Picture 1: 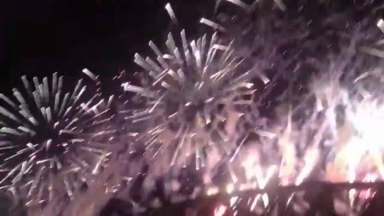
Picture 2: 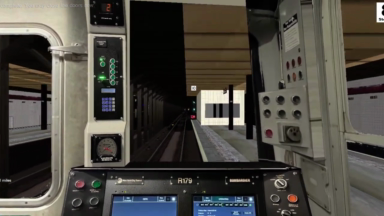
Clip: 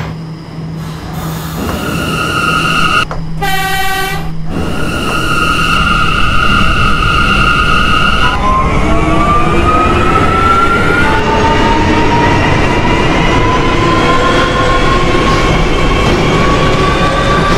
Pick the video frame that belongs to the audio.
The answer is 2